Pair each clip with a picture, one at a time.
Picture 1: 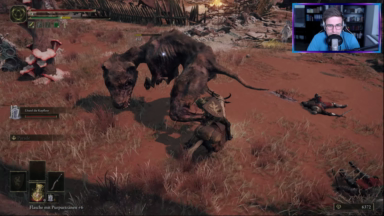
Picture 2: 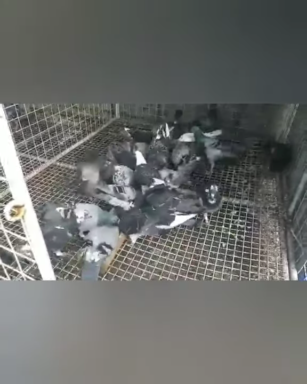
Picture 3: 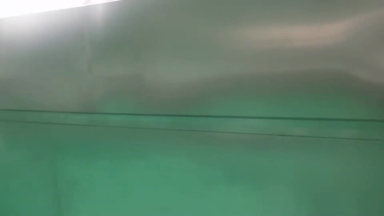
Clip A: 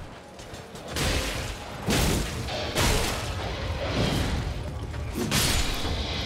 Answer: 1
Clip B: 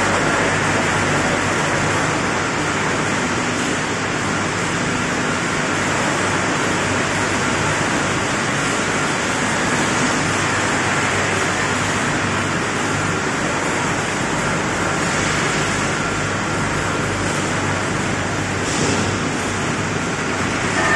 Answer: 3